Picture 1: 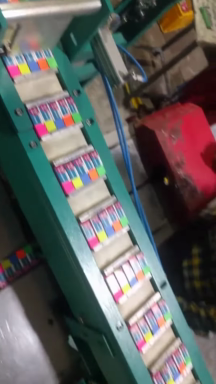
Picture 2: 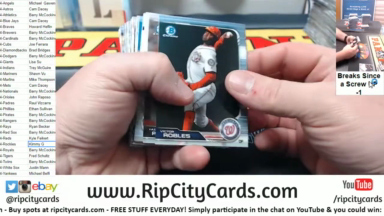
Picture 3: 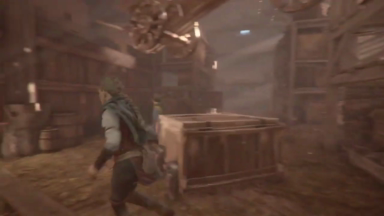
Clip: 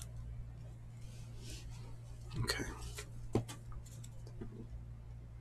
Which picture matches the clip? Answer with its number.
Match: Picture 2